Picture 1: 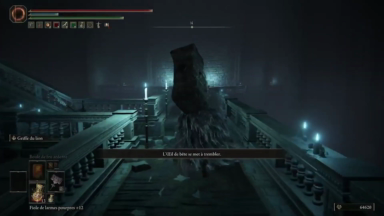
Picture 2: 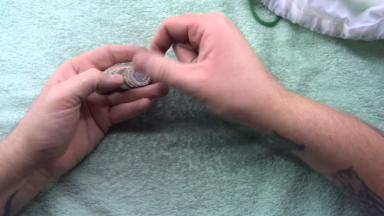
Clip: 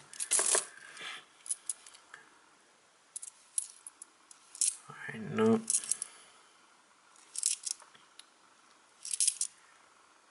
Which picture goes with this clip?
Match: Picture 2